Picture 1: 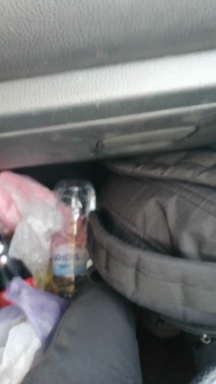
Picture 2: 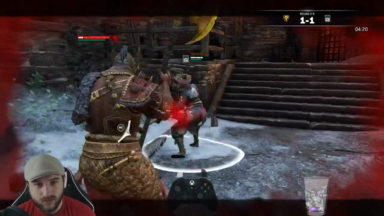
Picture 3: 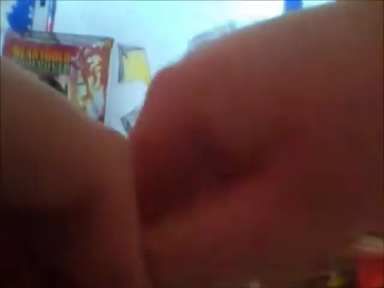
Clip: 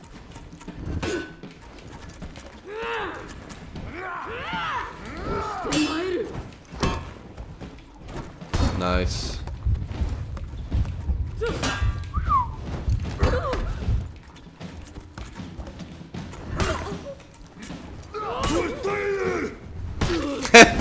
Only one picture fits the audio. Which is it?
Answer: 2